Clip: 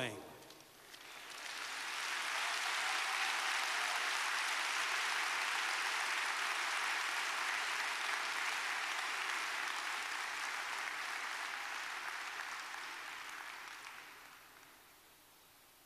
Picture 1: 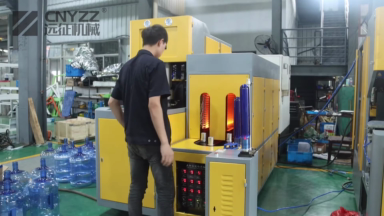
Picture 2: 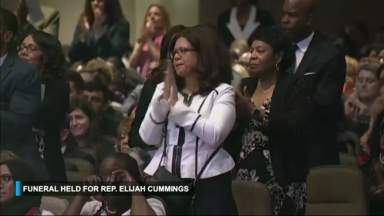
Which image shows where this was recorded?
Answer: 2